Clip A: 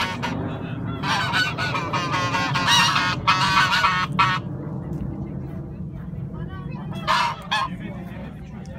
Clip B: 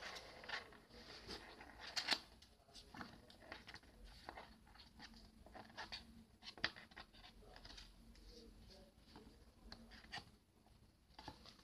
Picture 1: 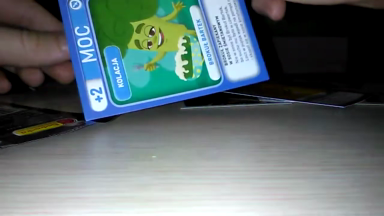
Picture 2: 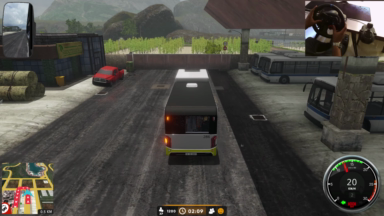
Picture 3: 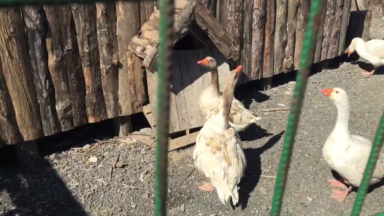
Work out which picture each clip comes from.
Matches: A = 3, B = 1